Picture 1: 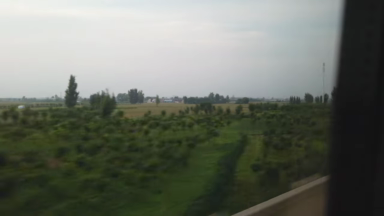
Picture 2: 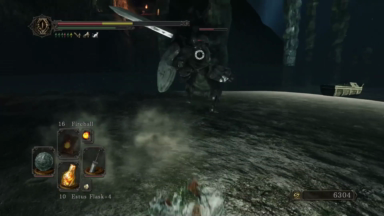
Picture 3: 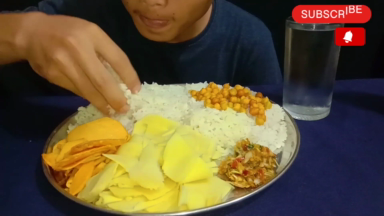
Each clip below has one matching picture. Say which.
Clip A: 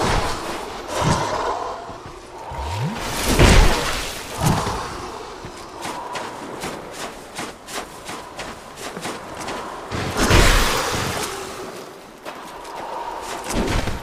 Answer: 2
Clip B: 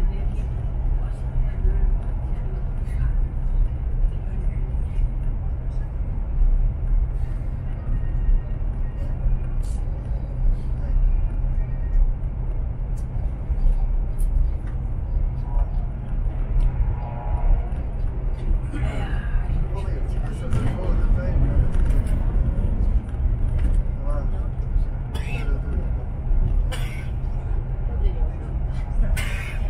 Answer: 1